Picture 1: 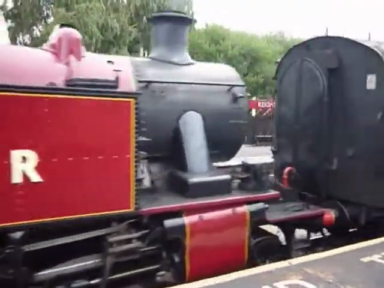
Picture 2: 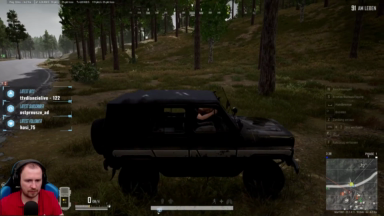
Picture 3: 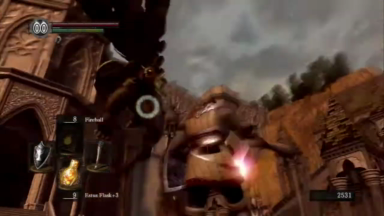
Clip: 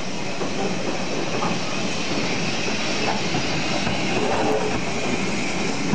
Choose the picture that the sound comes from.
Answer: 1